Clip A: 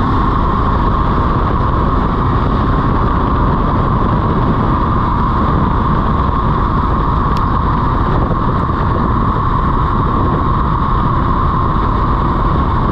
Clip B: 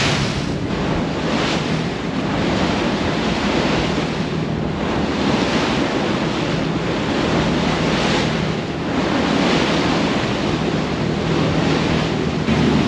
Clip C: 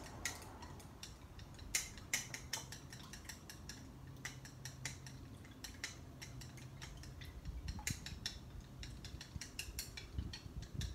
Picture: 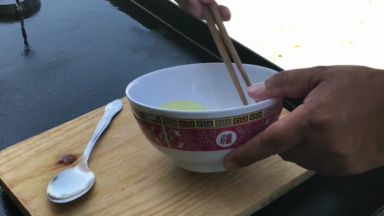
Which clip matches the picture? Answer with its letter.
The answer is C